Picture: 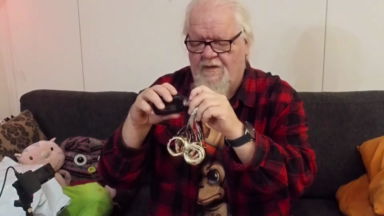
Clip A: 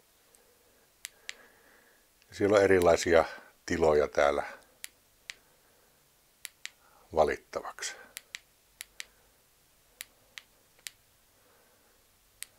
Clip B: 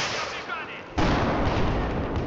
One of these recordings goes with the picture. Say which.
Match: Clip A